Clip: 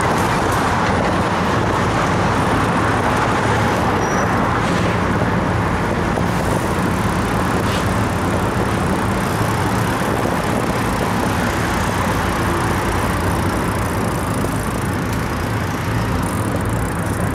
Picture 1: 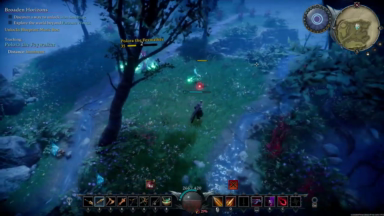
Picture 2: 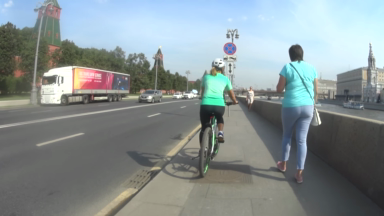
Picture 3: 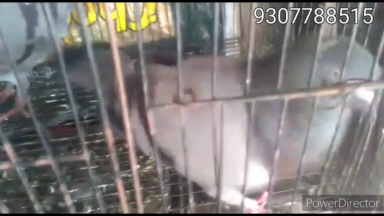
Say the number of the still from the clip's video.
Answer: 2